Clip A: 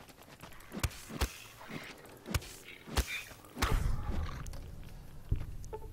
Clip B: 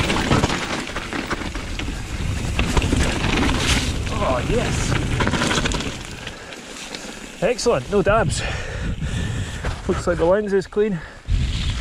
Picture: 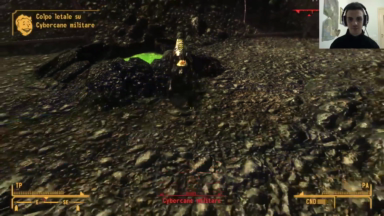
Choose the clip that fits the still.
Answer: A